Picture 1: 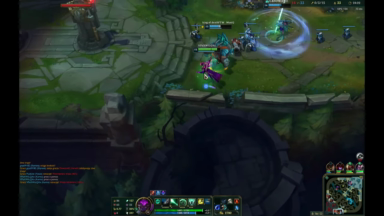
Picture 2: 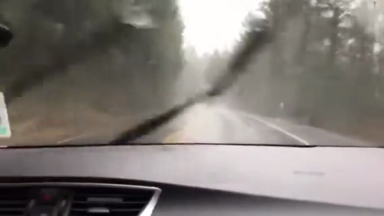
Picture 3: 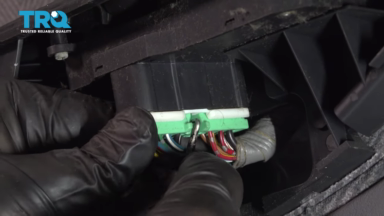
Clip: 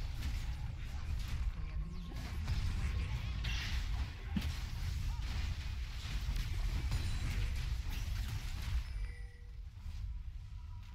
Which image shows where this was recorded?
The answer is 1